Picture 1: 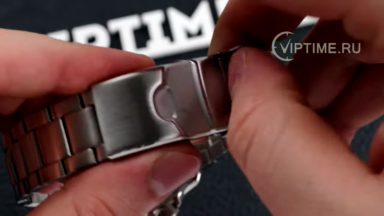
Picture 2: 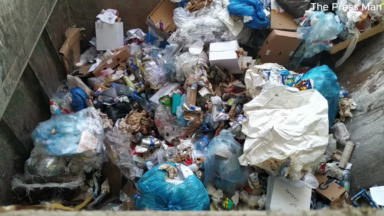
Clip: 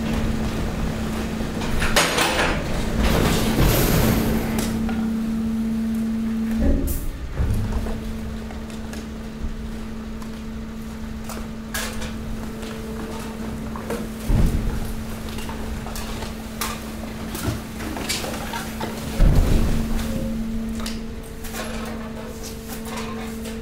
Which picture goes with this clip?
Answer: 2